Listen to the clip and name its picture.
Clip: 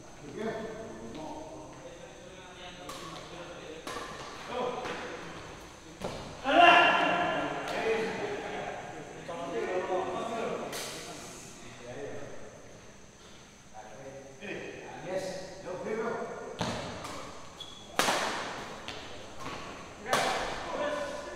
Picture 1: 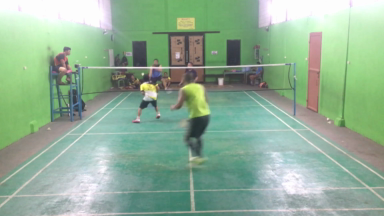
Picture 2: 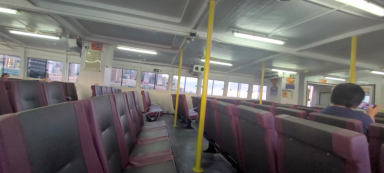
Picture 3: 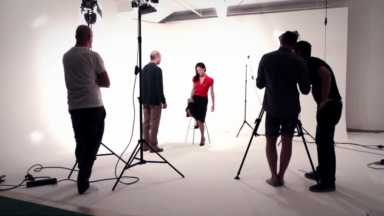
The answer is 1